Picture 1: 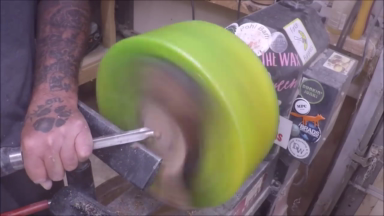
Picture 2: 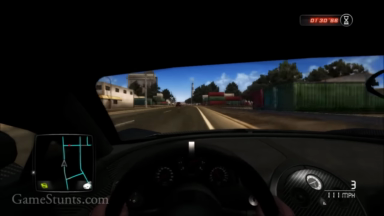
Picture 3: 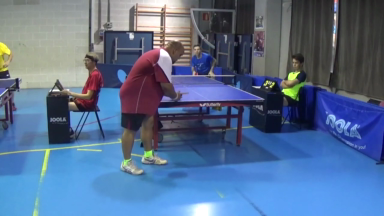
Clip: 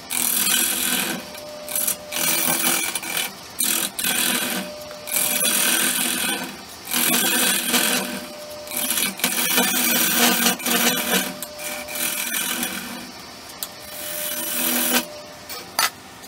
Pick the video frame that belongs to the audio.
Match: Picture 1